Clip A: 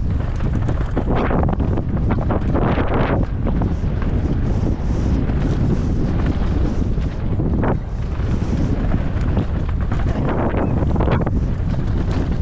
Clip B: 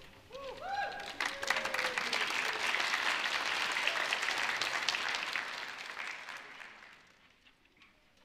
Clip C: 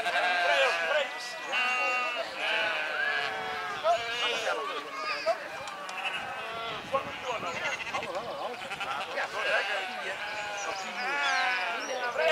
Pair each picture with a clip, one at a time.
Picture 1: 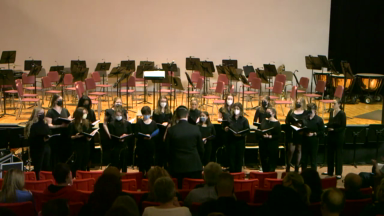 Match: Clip B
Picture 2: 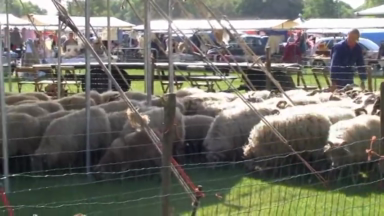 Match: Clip C